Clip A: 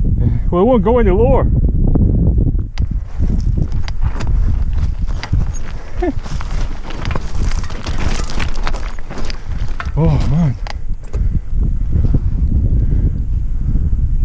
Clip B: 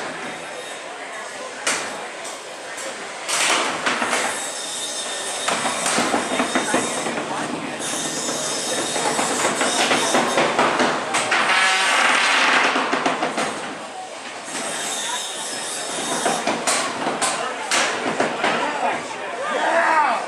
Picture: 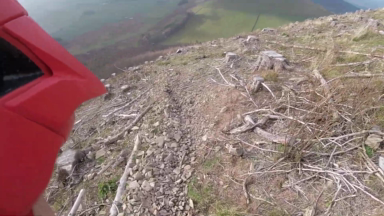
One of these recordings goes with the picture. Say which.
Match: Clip A